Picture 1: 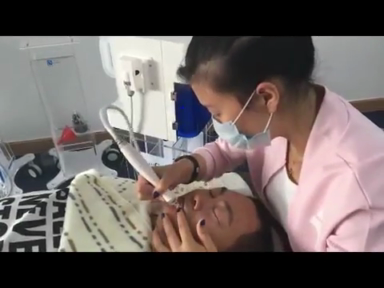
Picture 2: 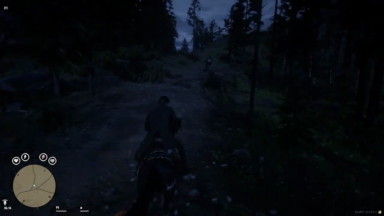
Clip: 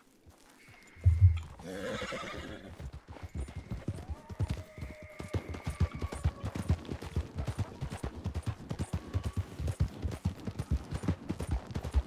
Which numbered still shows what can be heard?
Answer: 2